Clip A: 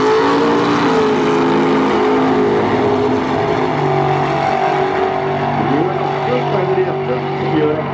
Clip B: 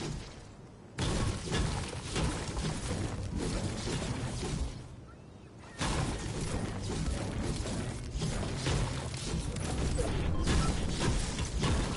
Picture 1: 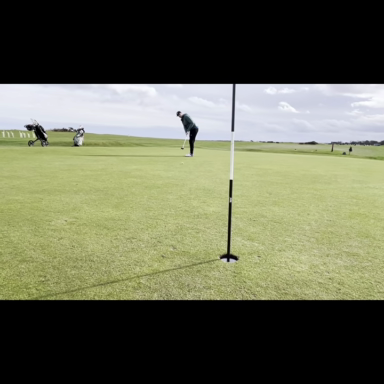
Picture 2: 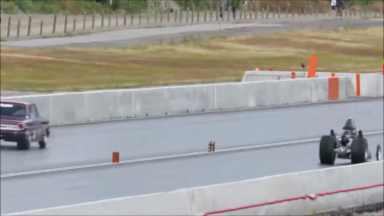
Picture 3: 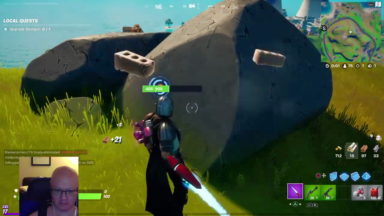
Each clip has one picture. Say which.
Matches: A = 2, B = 3